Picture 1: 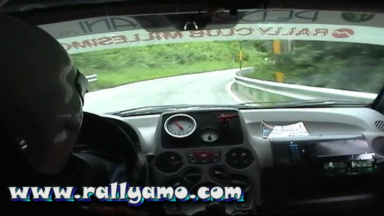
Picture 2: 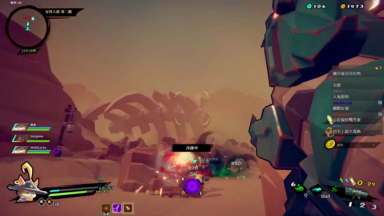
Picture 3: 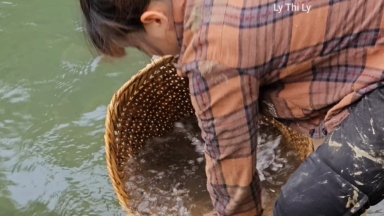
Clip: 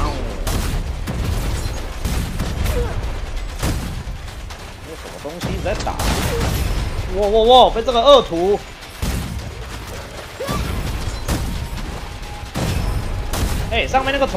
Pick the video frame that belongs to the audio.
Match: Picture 2